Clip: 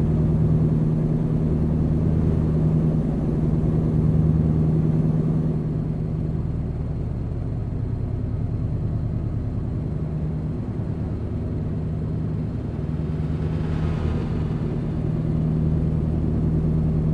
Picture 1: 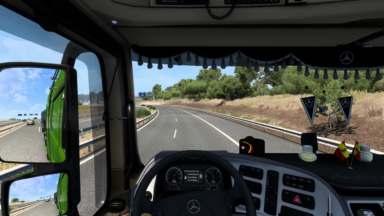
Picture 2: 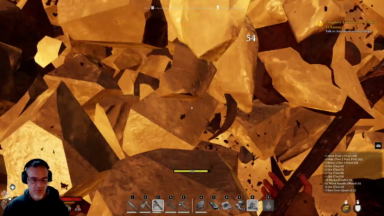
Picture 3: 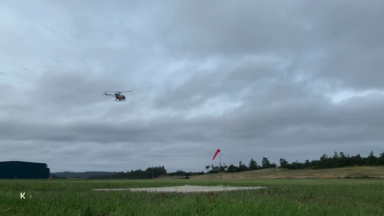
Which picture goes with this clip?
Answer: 1